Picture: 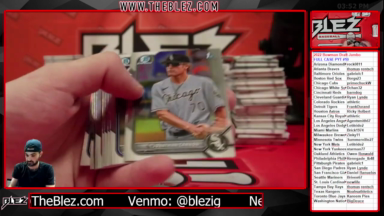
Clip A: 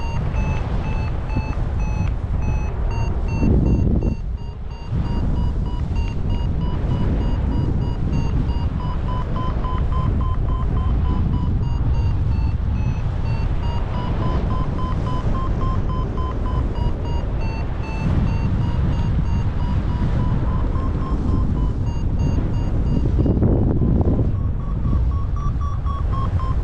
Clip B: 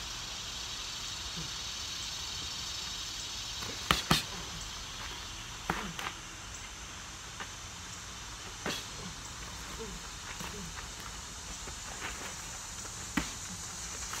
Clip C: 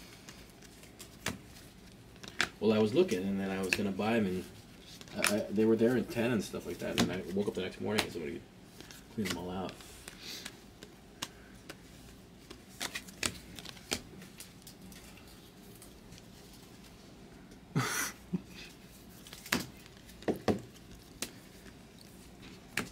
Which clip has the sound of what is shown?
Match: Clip C